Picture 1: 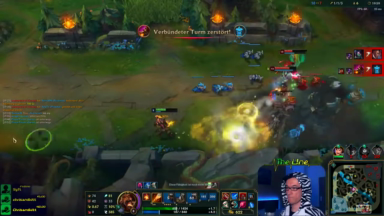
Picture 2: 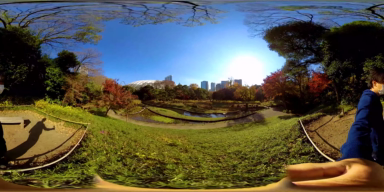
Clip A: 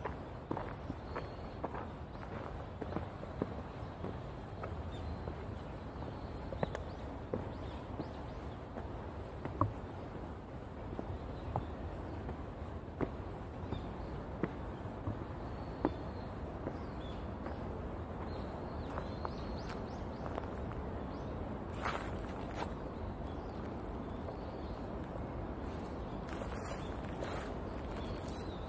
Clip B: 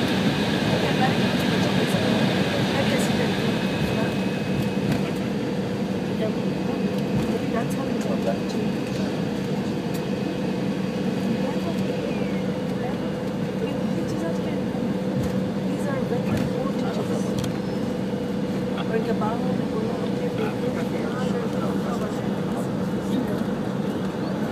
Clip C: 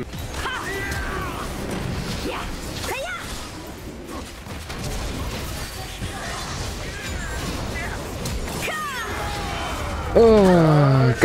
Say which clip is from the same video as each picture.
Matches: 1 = C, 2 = A